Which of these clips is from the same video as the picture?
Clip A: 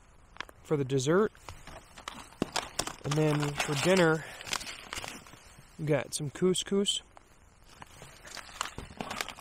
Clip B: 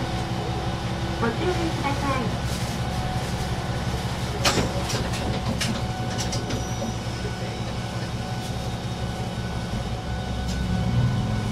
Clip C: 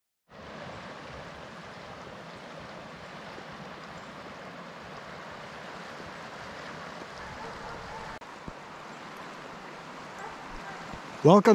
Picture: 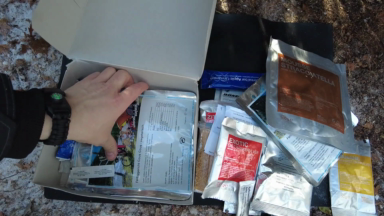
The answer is A